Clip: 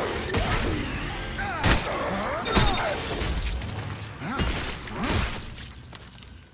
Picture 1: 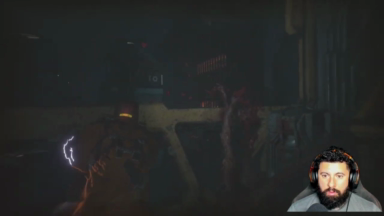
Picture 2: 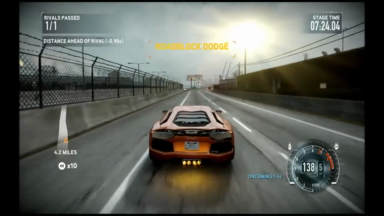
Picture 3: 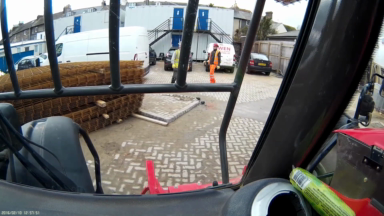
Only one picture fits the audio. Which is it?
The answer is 1